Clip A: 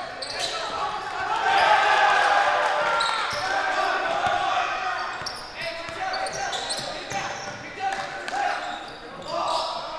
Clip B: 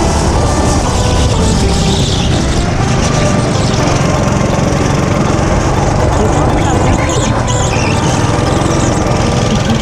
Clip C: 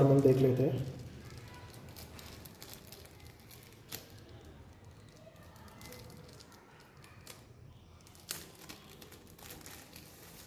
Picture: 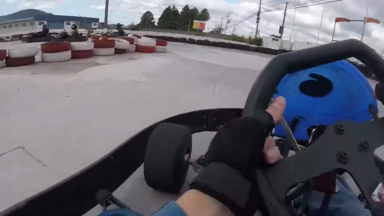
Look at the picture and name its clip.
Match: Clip B